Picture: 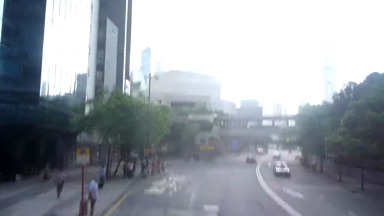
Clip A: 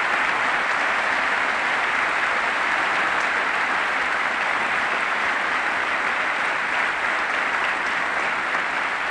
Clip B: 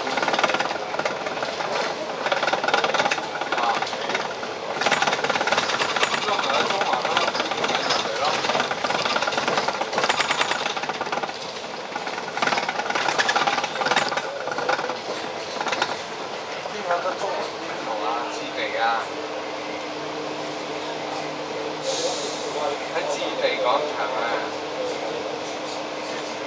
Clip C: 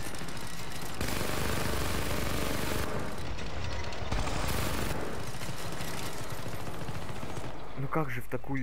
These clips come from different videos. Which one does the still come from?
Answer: B